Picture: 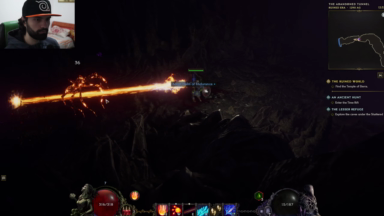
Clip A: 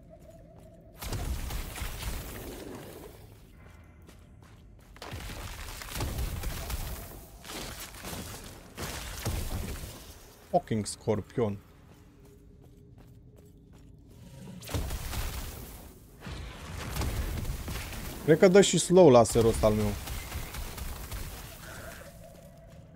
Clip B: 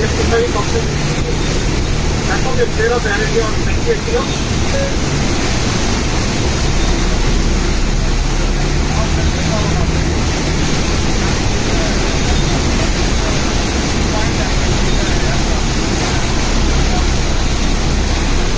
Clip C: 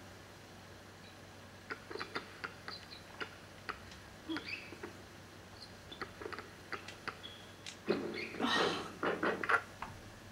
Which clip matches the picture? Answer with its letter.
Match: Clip A